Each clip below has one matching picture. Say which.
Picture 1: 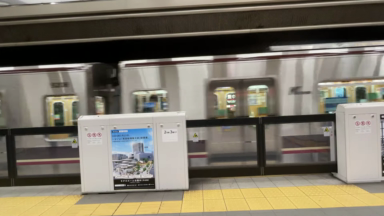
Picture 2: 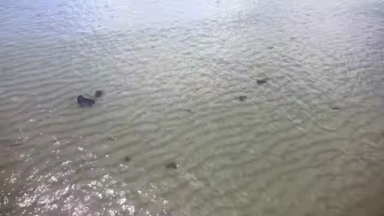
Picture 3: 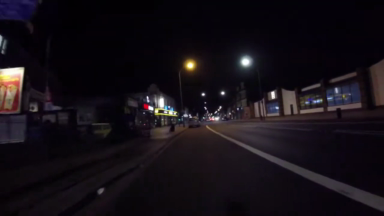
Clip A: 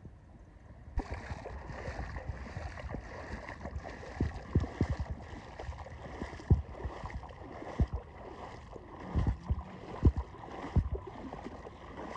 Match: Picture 2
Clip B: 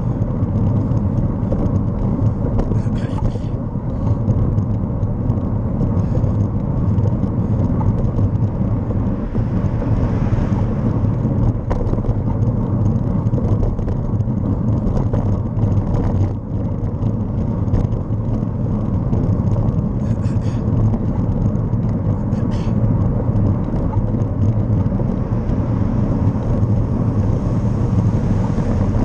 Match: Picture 3